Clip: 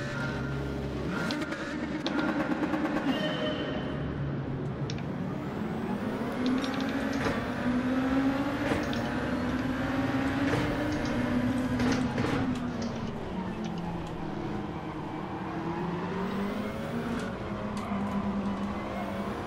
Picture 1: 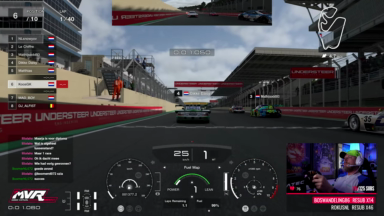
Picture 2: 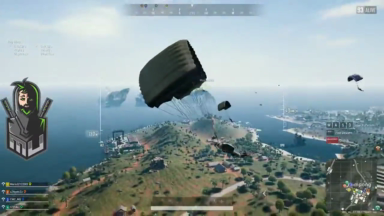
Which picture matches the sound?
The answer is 1